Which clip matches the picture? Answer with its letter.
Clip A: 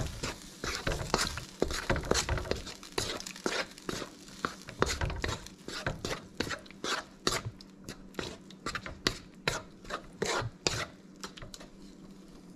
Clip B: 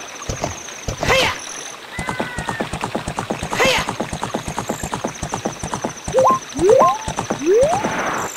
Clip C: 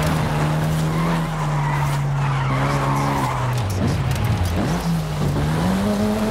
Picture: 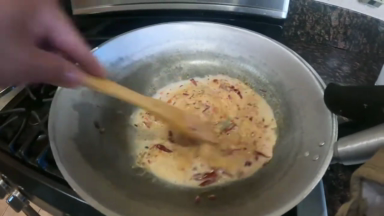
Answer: A